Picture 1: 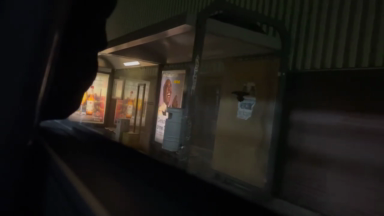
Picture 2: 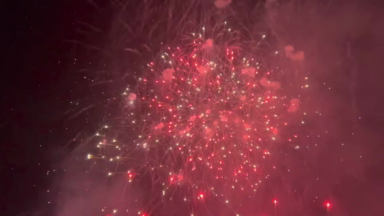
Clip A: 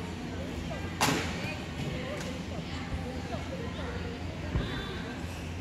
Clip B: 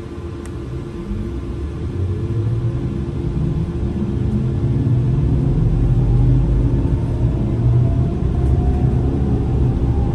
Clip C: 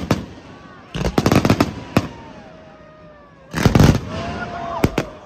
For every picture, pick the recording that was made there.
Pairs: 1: B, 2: C